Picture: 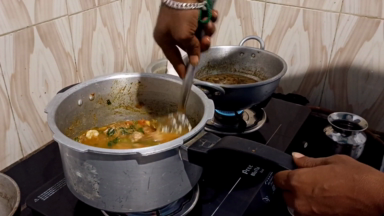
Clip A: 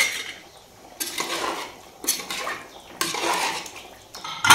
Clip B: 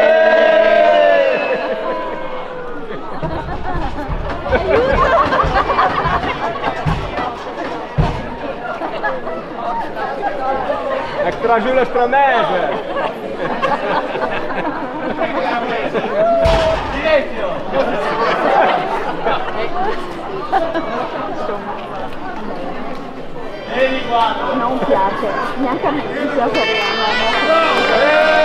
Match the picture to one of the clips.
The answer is A